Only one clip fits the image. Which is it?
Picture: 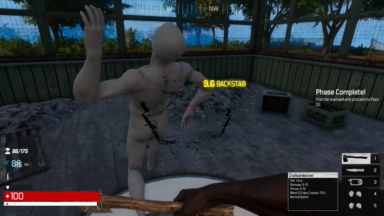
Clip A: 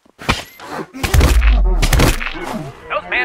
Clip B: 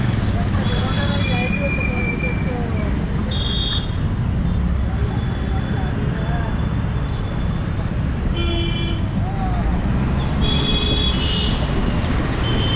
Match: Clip A